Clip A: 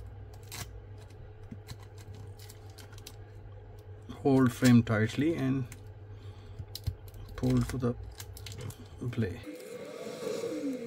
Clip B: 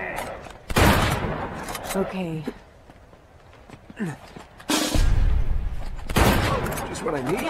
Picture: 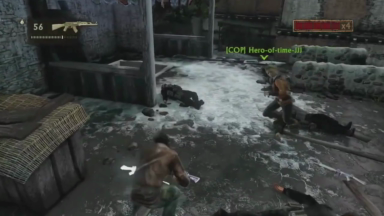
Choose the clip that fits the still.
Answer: B